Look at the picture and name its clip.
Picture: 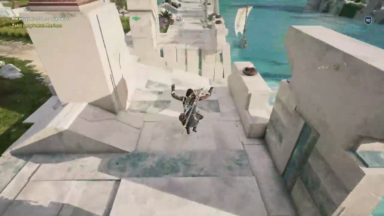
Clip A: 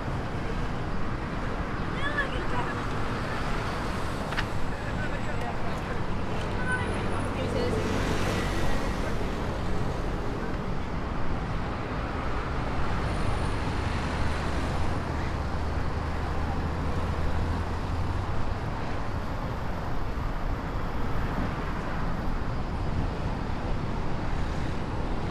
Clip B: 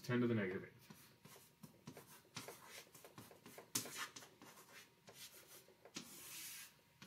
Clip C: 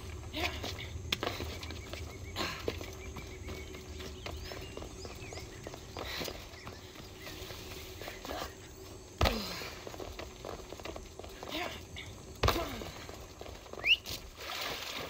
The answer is C